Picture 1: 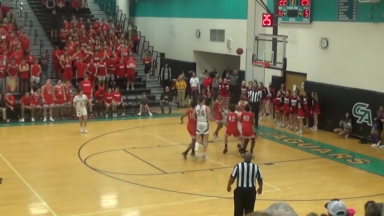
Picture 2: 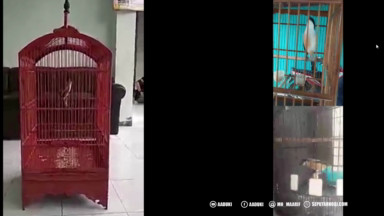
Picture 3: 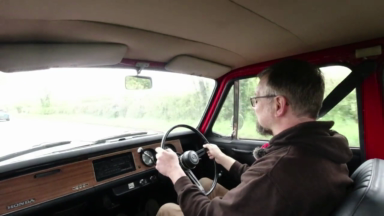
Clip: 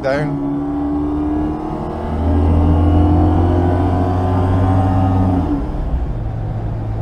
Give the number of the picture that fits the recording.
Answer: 3